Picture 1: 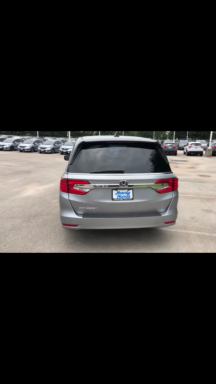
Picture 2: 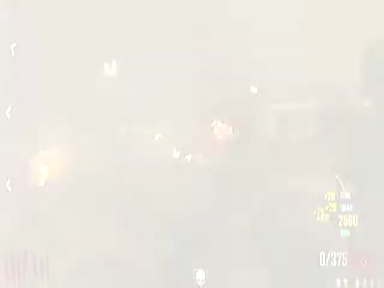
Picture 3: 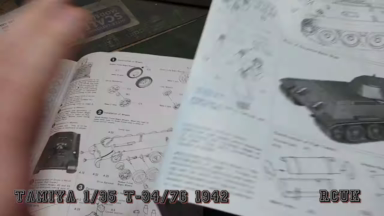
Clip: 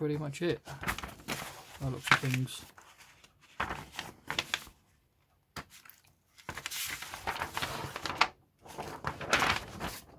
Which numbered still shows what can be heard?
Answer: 3